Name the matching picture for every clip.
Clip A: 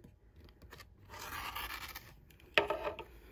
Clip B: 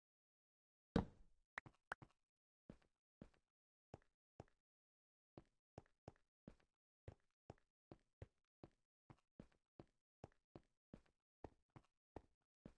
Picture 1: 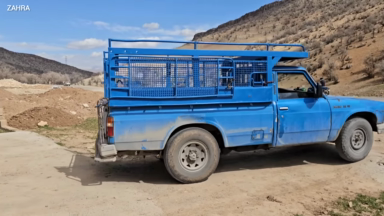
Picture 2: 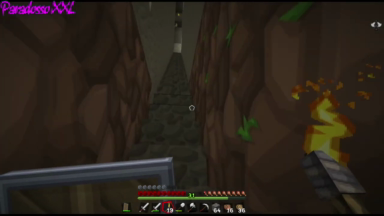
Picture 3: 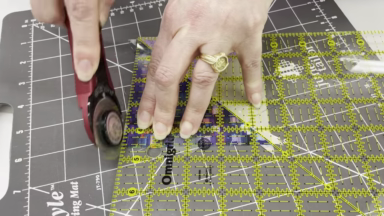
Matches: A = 3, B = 2